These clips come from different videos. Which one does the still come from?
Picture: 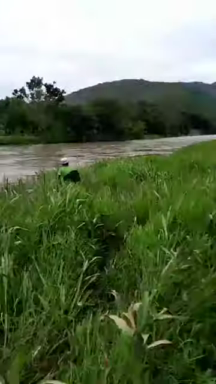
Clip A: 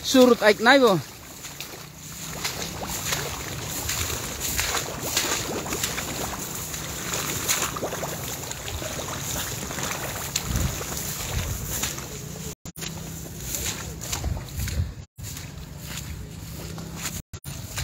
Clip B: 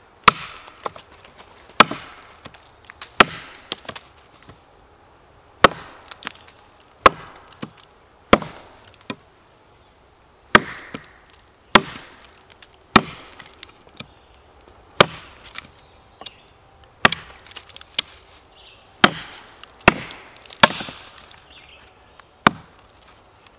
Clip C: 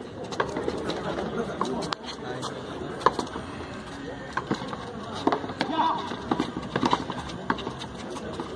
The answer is A